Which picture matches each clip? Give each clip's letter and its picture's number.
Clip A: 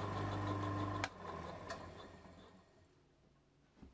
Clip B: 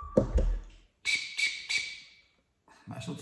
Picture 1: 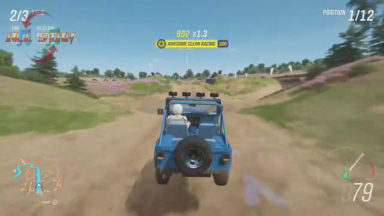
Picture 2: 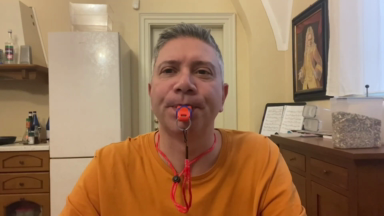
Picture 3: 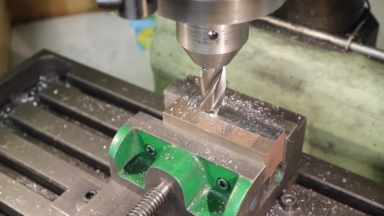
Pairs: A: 3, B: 2